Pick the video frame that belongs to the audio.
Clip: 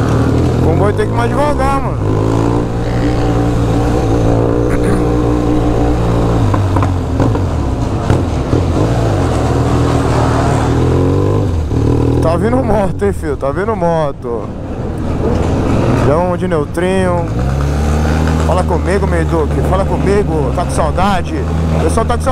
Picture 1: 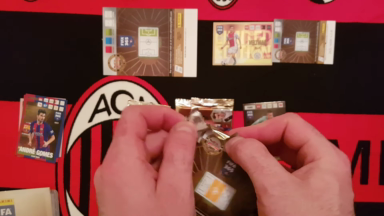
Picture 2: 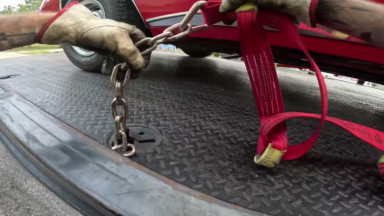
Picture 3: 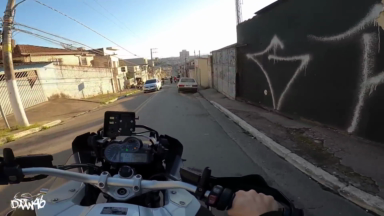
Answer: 3